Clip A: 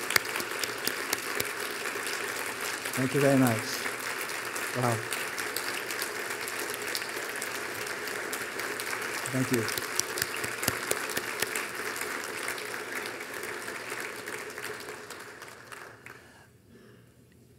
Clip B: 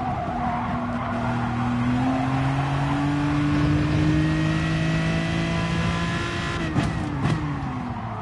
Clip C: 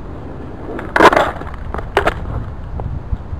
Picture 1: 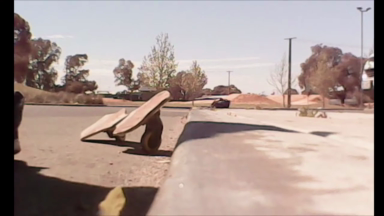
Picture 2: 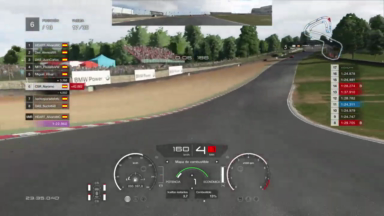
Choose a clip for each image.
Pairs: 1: C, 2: B